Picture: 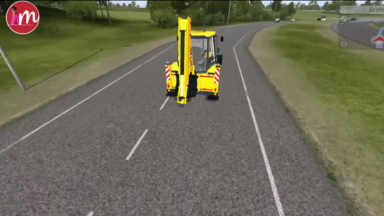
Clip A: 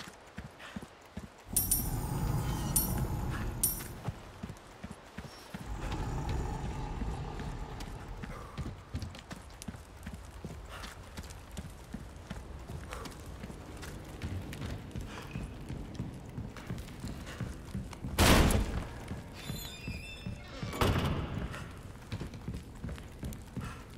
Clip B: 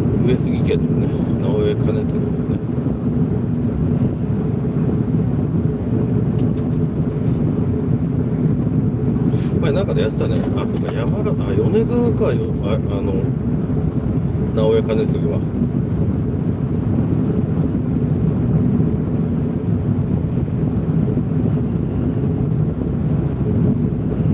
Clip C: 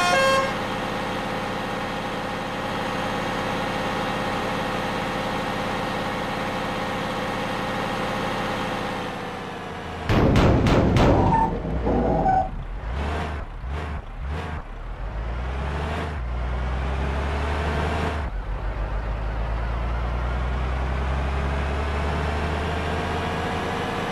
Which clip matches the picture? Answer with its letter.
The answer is C